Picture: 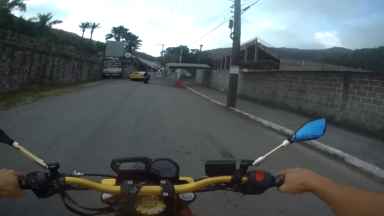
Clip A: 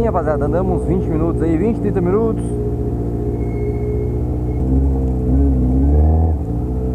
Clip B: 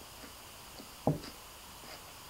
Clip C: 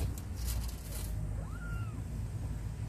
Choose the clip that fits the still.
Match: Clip A